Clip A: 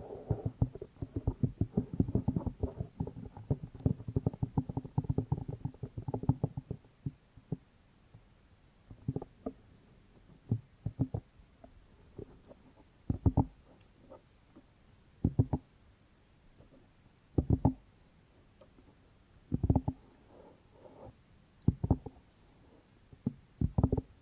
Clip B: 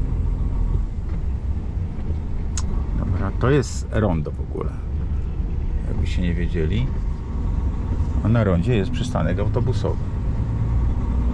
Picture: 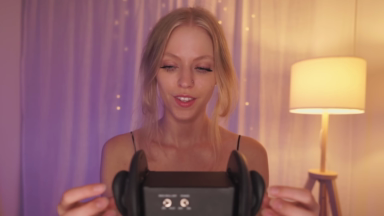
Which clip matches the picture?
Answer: A